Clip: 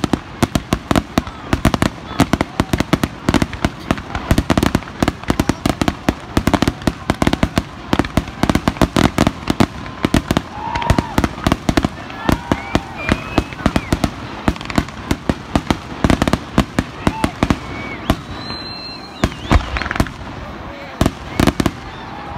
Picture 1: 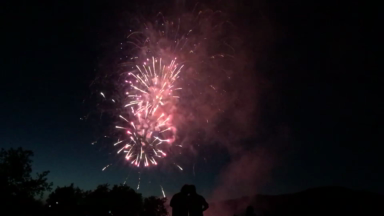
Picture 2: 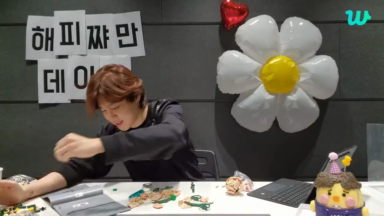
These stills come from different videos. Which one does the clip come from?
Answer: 1